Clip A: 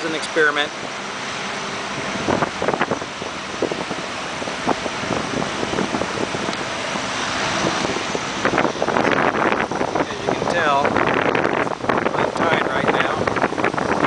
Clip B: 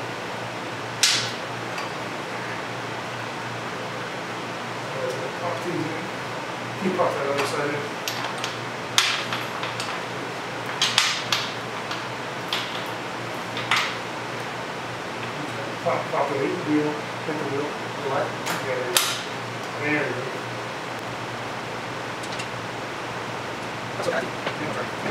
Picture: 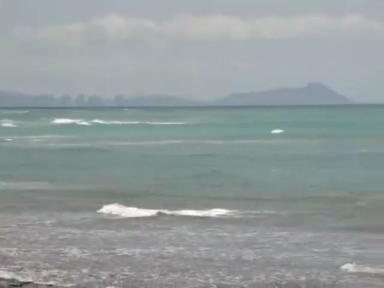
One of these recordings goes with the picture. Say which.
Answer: A